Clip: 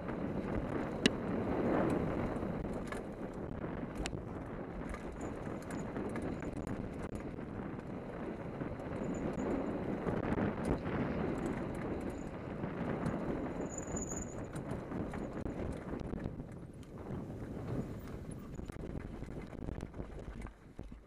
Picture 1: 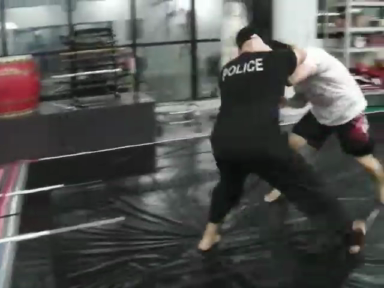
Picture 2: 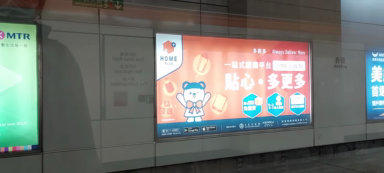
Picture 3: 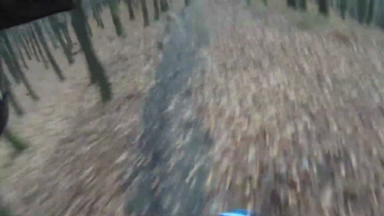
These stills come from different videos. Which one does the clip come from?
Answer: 3